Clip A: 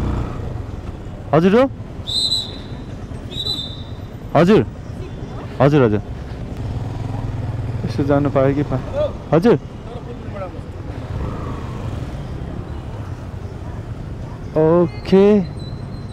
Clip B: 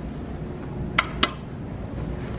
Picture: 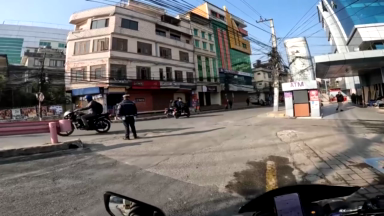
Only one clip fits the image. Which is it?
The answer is A